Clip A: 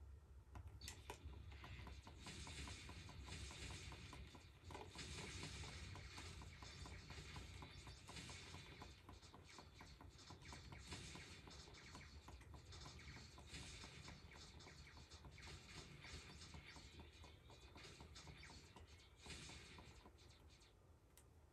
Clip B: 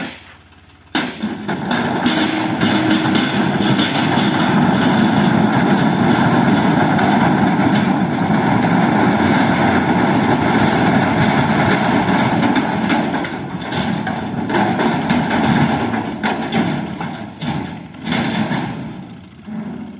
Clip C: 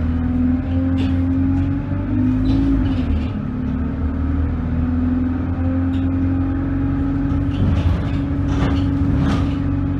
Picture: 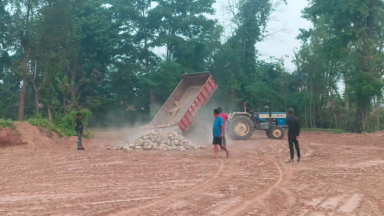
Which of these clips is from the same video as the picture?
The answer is B